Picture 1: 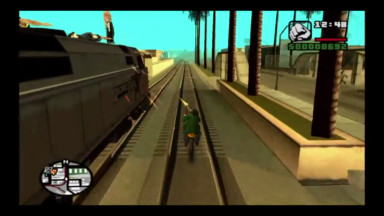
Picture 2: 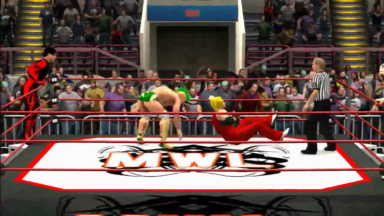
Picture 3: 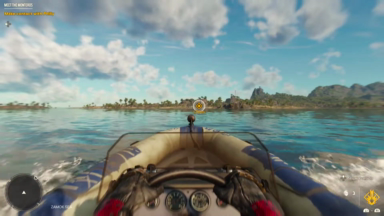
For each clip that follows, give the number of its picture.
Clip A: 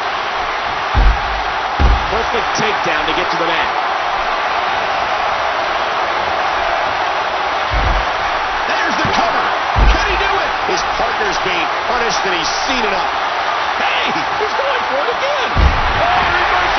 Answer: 2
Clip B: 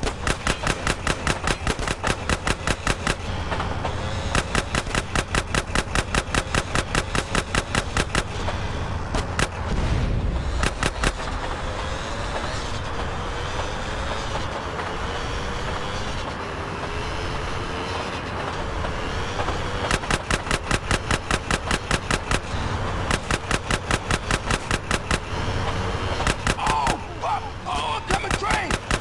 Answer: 1